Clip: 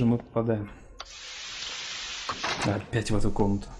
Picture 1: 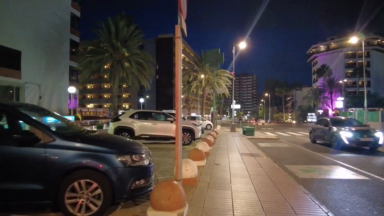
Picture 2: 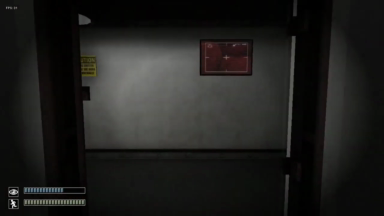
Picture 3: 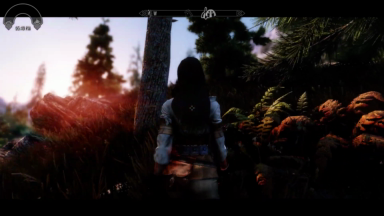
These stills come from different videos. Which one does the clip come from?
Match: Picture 2